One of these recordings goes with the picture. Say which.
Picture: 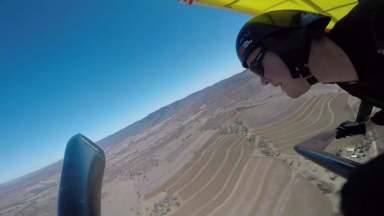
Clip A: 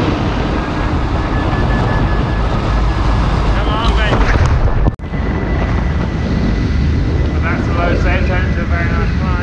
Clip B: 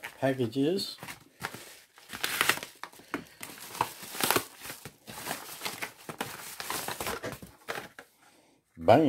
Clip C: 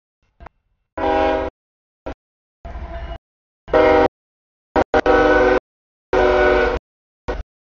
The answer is A